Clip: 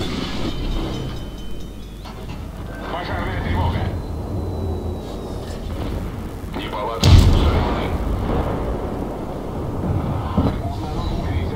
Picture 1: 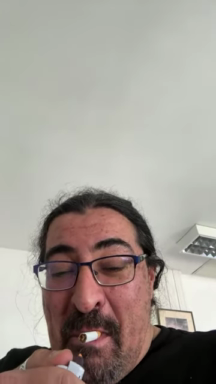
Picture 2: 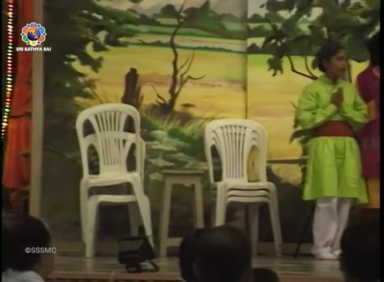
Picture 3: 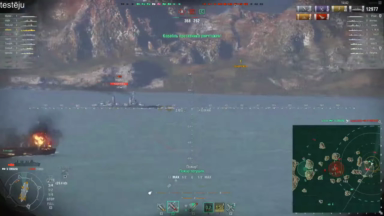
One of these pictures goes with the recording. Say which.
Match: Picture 3